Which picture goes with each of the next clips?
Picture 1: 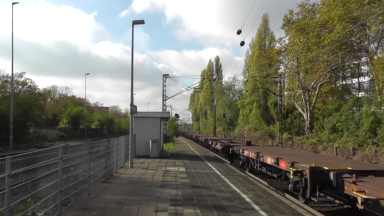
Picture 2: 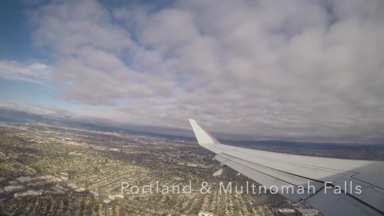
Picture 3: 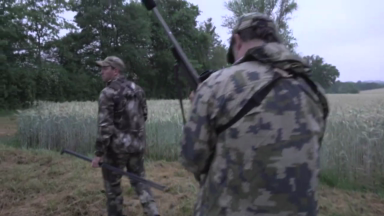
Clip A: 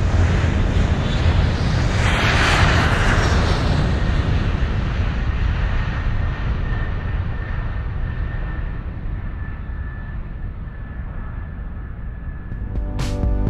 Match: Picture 2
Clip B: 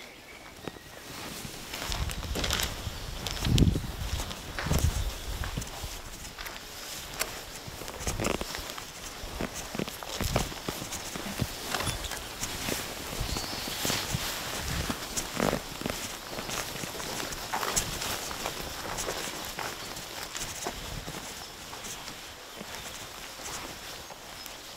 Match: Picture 3